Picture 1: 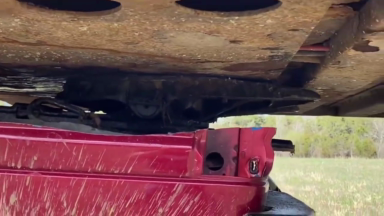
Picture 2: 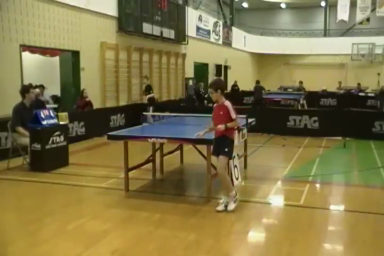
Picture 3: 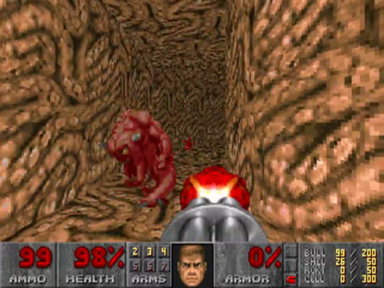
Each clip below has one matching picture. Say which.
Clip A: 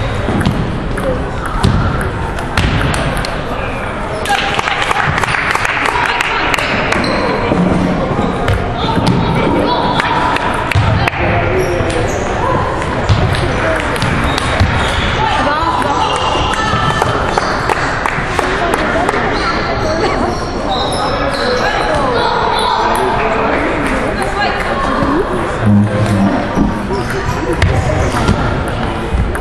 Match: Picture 2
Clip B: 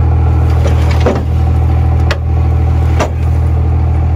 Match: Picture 1